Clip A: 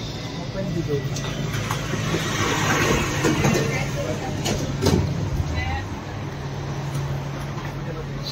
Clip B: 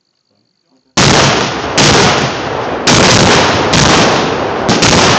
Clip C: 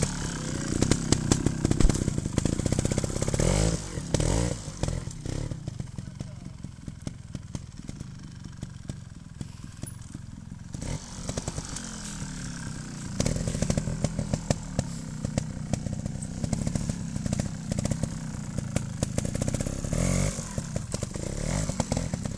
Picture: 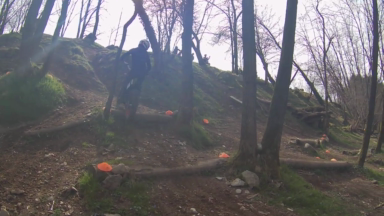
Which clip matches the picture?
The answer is C